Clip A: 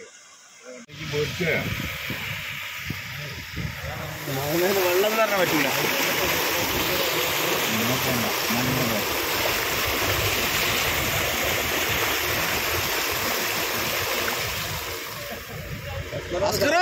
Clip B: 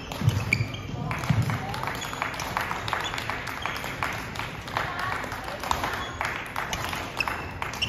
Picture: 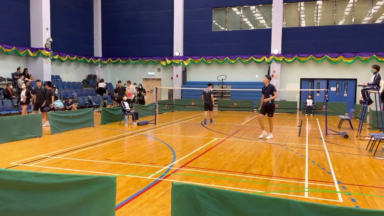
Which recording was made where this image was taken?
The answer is B